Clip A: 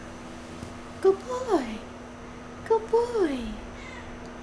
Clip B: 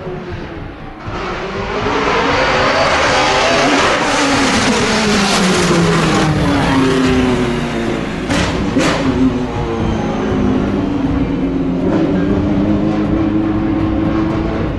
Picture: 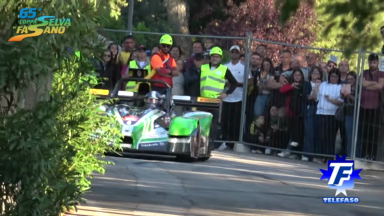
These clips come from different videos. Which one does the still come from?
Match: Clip B